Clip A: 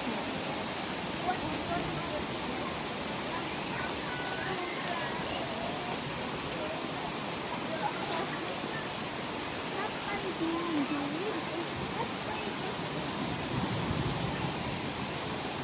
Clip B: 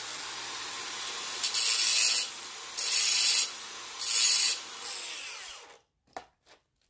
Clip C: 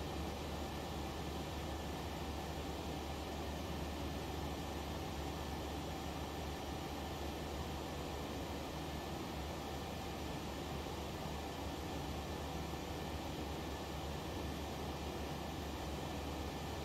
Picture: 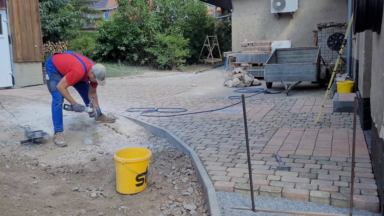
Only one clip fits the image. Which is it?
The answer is B